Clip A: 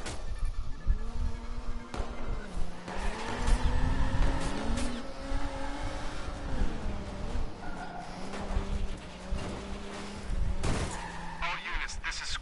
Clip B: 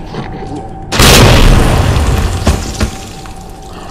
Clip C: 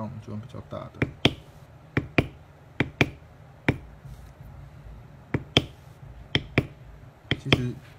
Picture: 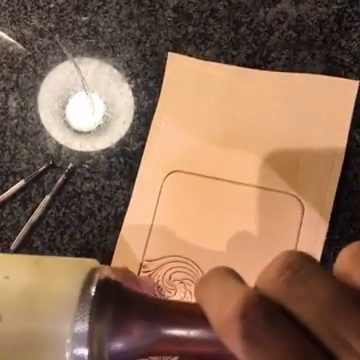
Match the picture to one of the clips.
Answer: C